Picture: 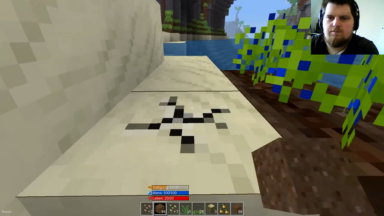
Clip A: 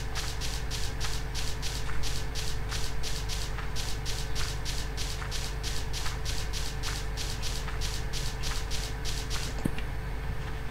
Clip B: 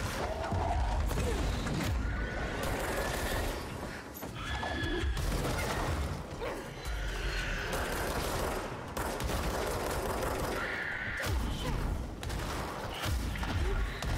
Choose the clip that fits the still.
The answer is A